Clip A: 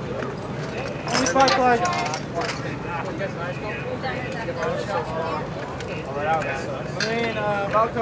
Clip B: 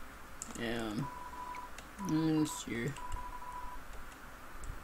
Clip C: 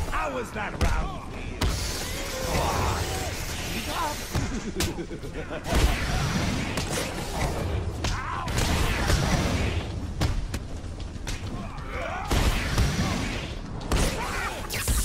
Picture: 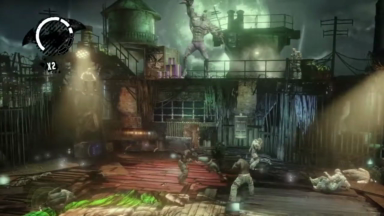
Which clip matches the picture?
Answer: C